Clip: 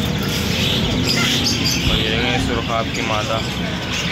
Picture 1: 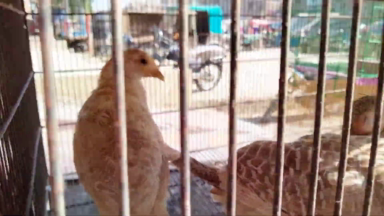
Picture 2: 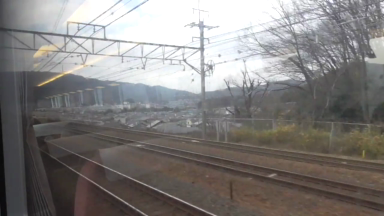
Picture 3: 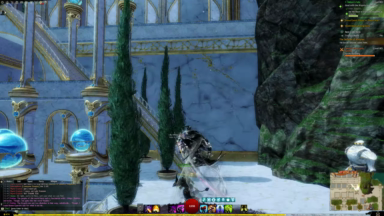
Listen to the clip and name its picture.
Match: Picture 1